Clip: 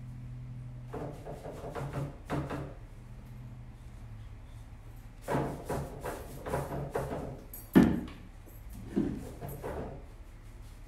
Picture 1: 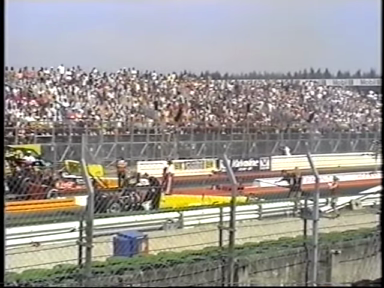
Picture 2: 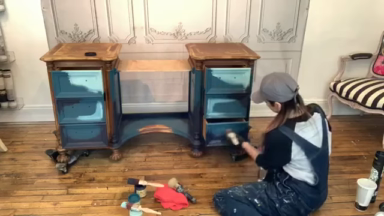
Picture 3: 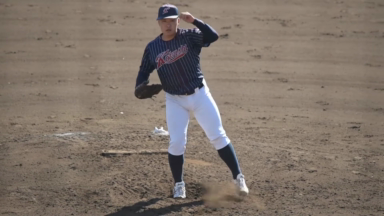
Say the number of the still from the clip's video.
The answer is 2